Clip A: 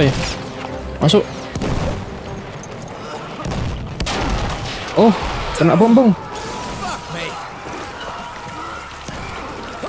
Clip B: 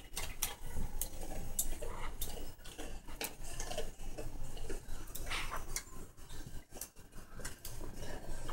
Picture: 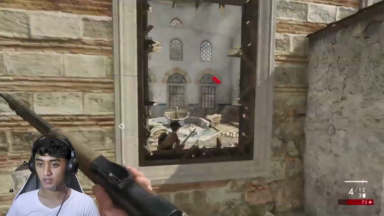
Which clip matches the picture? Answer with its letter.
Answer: A